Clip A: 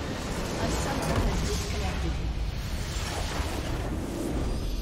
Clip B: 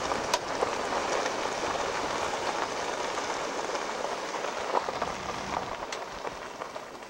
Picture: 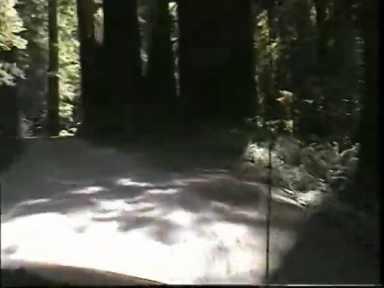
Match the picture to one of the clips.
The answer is B